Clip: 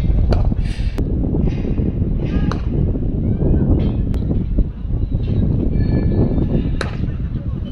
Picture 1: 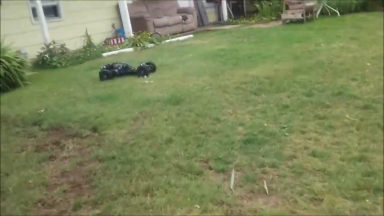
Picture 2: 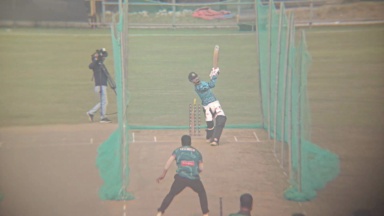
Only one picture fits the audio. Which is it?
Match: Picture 2